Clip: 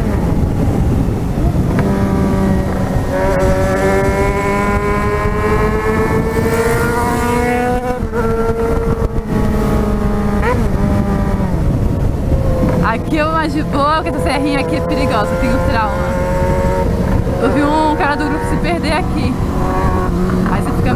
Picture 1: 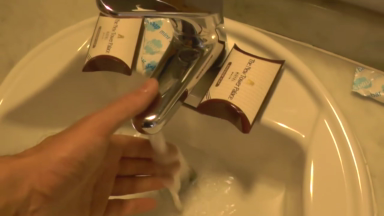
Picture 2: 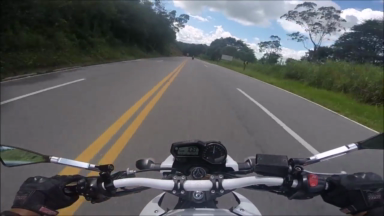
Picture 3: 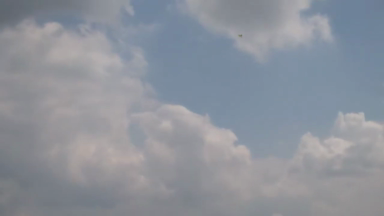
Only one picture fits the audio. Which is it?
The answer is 2